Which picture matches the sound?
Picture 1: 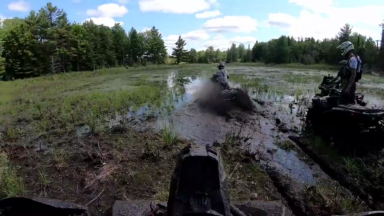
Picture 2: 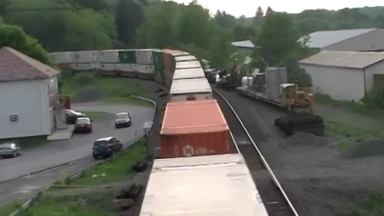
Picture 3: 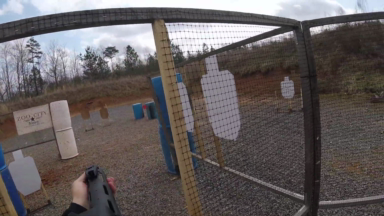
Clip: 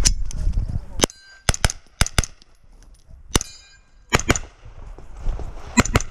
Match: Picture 3